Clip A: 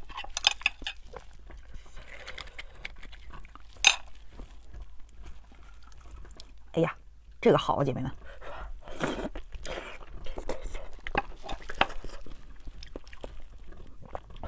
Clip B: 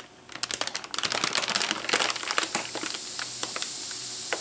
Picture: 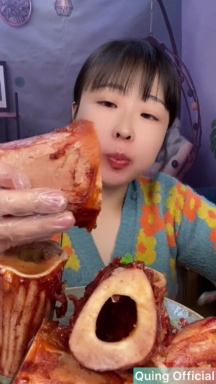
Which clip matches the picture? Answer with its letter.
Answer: A